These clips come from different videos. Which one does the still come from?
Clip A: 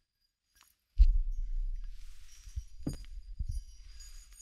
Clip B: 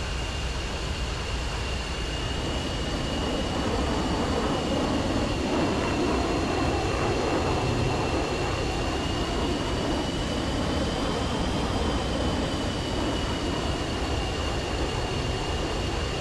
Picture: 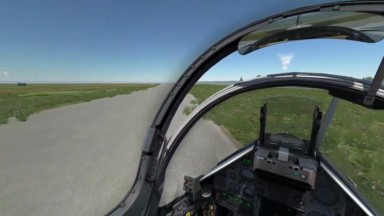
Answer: B